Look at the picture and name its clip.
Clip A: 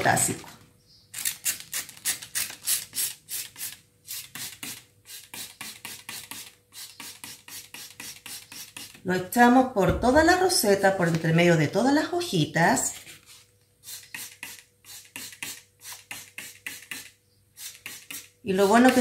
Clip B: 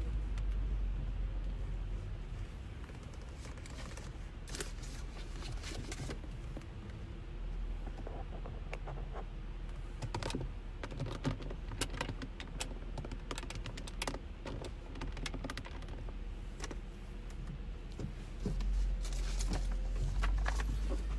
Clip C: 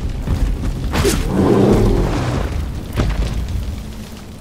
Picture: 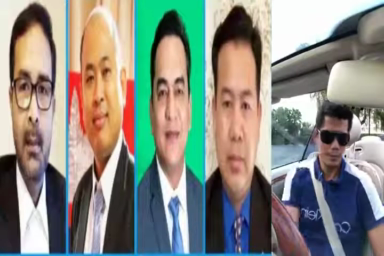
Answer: B